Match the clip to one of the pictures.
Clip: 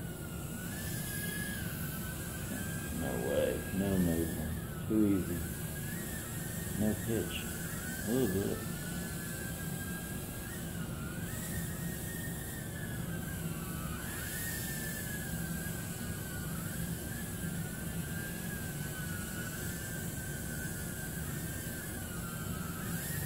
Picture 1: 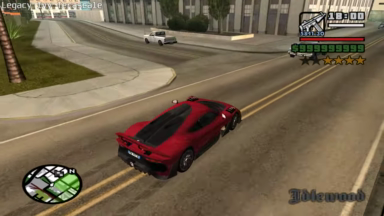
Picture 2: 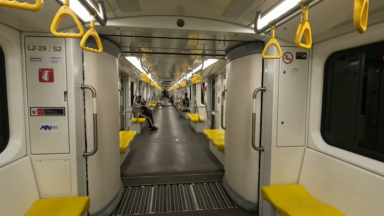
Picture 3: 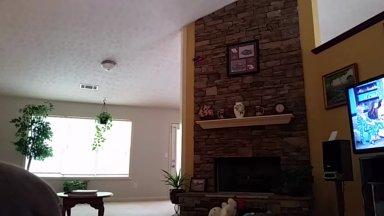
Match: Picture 3